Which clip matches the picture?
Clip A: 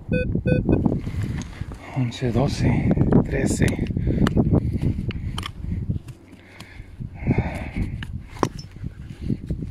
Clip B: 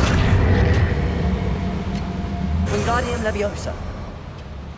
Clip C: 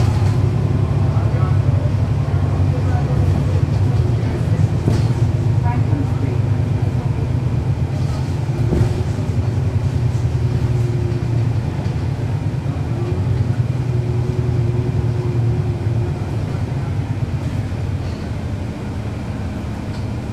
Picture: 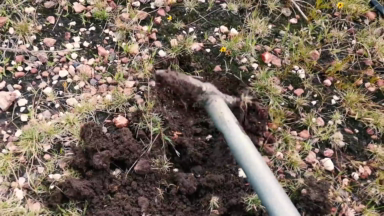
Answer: A